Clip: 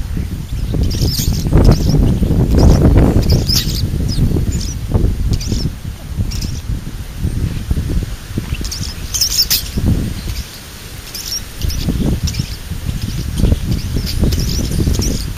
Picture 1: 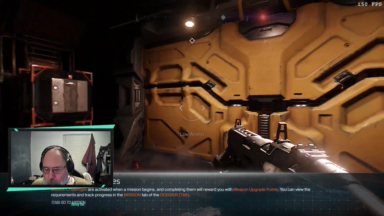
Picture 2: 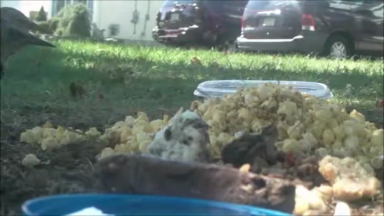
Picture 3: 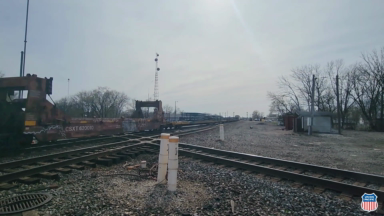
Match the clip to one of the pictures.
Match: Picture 2